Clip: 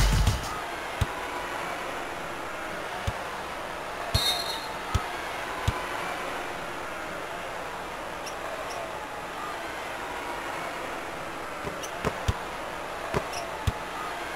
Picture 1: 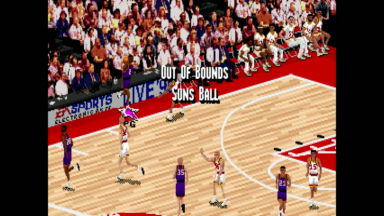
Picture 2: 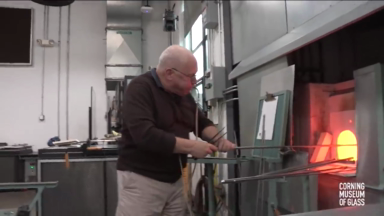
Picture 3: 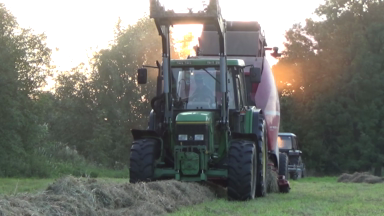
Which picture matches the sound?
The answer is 1